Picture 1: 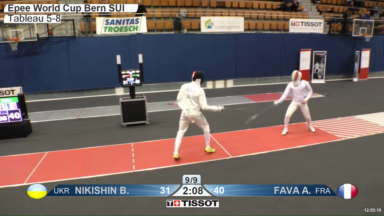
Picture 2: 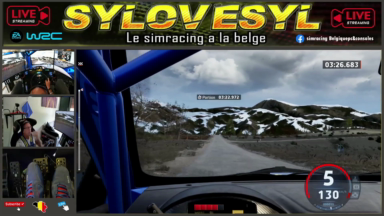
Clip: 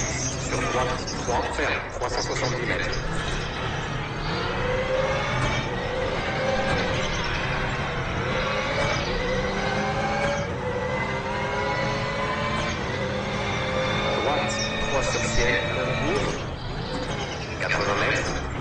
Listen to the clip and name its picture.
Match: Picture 2